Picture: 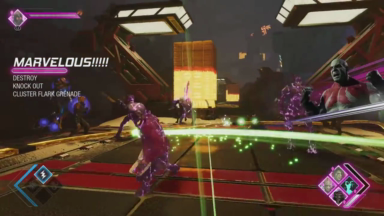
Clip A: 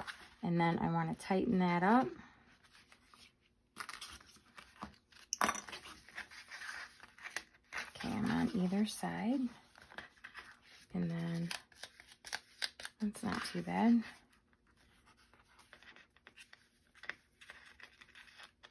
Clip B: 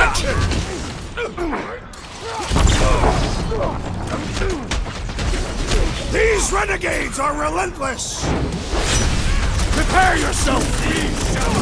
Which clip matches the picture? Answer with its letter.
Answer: B